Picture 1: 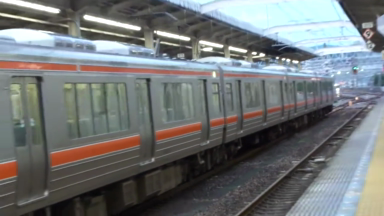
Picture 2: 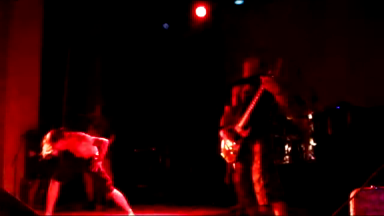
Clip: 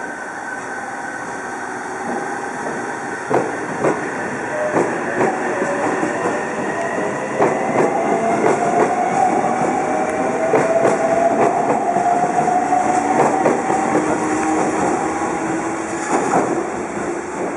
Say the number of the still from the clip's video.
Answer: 1